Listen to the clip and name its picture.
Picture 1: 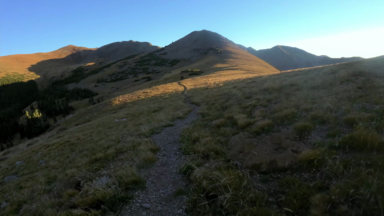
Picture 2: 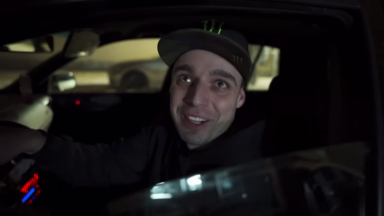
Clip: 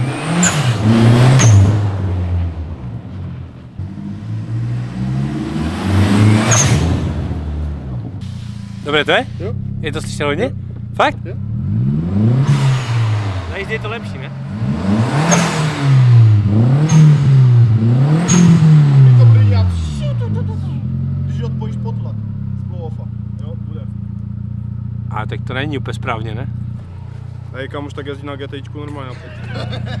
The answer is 2